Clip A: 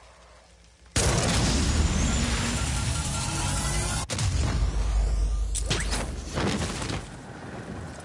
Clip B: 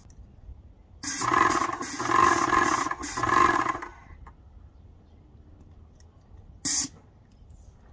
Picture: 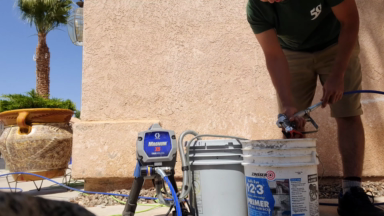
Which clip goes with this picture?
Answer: B